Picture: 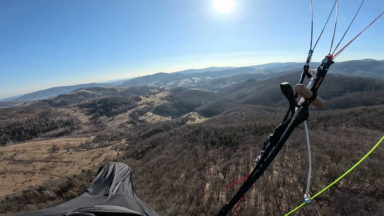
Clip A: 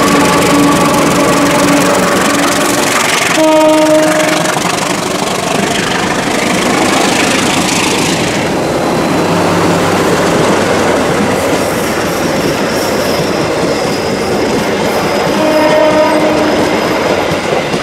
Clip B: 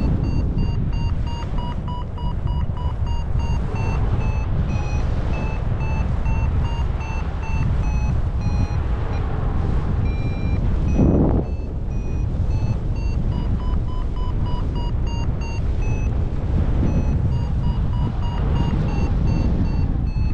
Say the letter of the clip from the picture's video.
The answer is B